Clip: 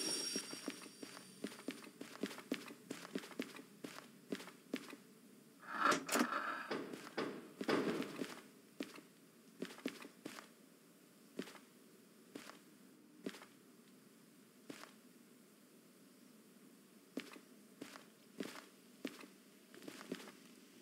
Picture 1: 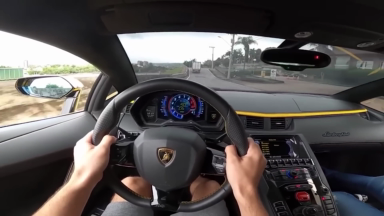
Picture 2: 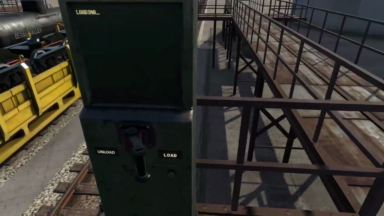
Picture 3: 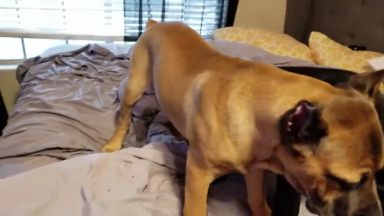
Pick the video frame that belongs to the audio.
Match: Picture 2